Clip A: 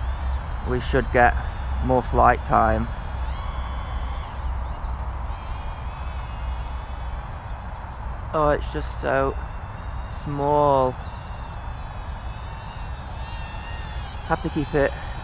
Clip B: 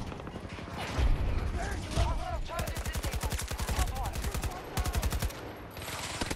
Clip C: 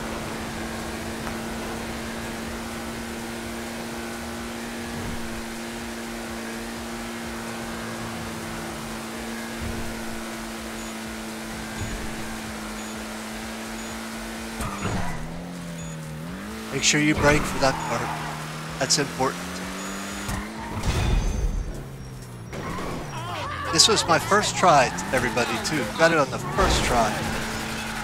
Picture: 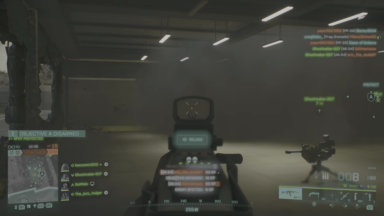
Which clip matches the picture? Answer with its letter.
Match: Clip B